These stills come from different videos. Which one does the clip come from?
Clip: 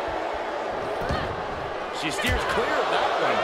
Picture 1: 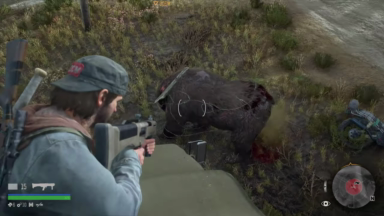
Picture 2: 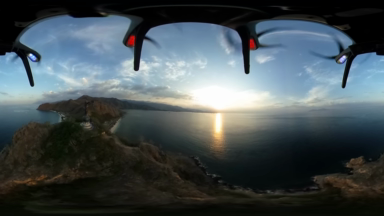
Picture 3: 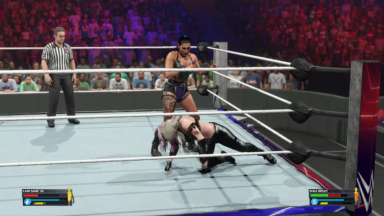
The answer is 3